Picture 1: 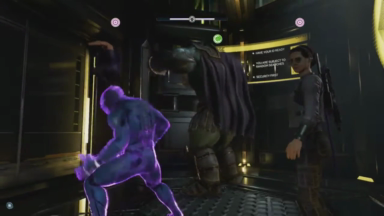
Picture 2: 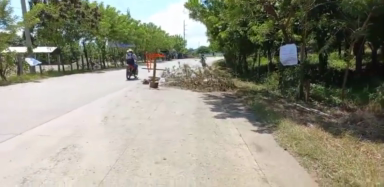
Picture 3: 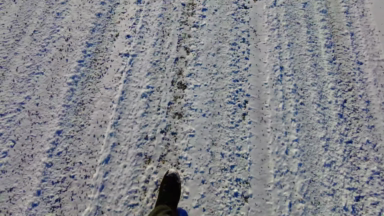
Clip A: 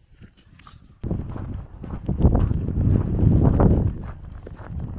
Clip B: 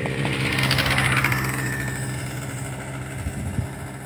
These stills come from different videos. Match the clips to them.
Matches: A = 3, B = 2